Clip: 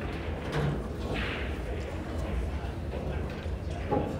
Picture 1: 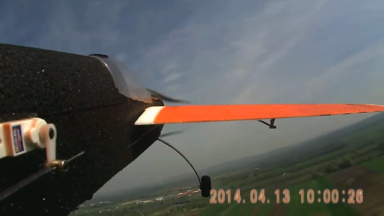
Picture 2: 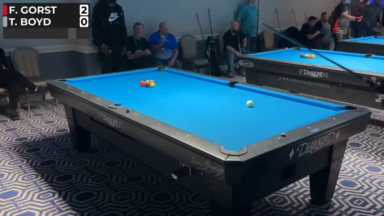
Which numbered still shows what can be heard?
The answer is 2